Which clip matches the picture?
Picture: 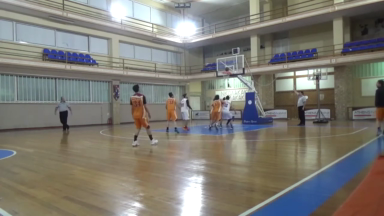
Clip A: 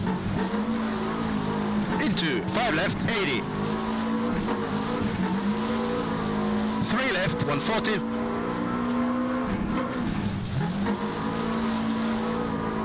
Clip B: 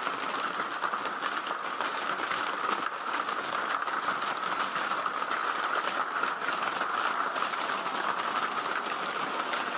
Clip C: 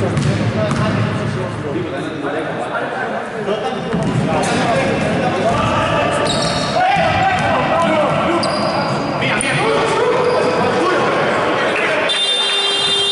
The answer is C